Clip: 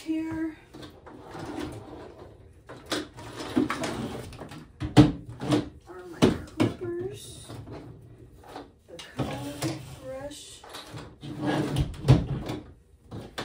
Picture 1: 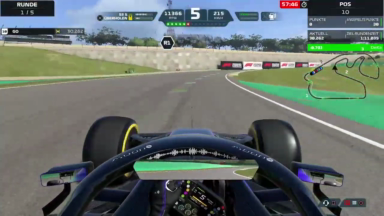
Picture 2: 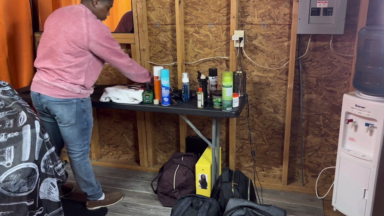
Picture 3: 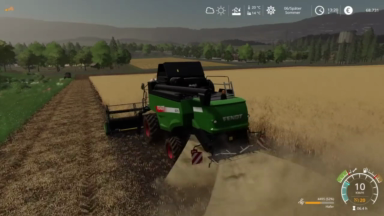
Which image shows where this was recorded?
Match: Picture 2